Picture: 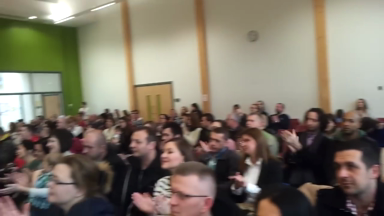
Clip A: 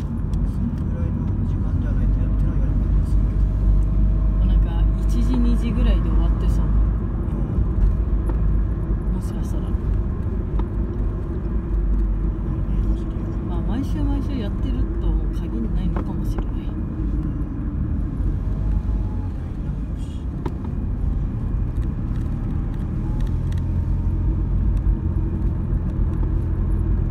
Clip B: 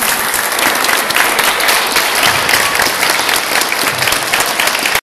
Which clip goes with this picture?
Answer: B